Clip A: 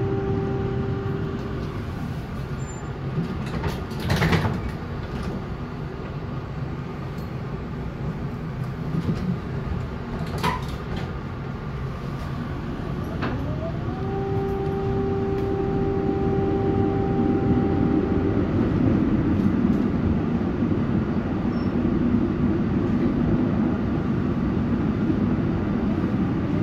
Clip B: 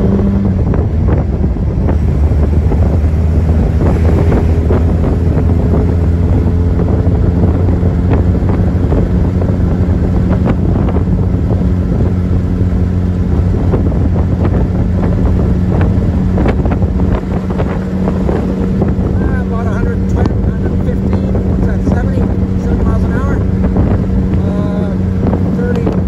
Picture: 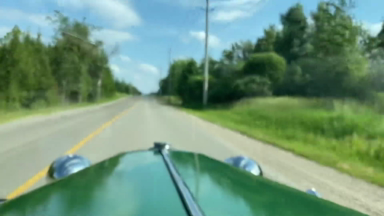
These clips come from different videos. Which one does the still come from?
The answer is B